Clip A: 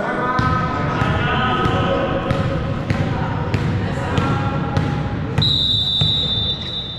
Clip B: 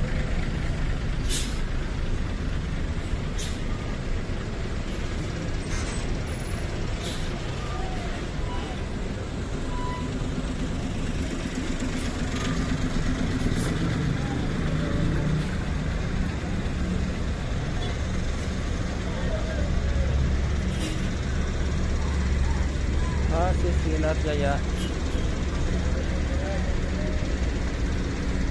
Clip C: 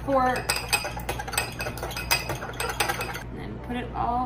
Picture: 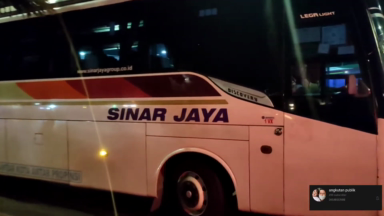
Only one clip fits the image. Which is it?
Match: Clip B